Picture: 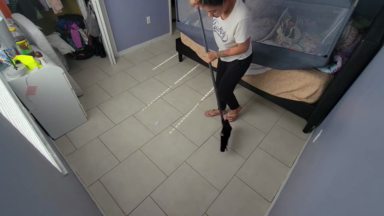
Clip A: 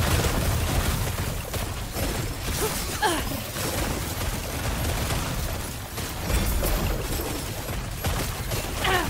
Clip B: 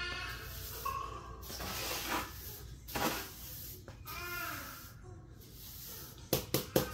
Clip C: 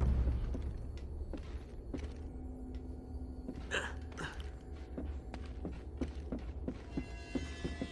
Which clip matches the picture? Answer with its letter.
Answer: B